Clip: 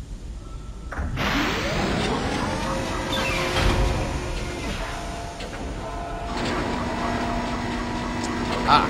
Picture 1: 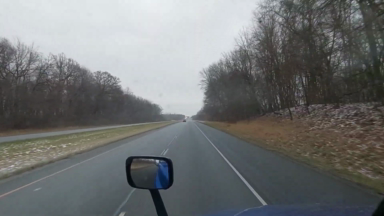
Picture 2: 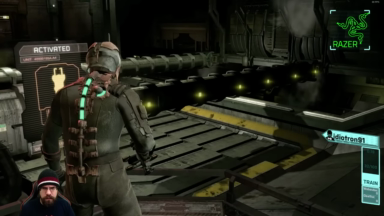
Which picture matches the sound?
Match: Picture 2